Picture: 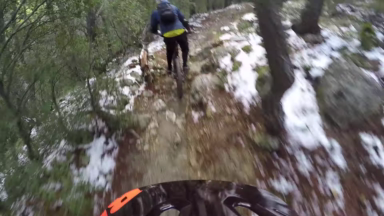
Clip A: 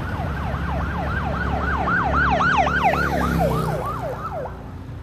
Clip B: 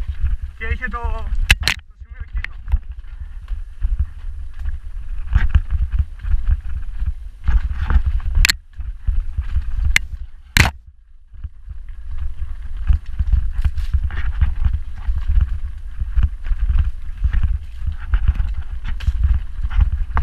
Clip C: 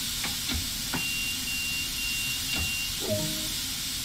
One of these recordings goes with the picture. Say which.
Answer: B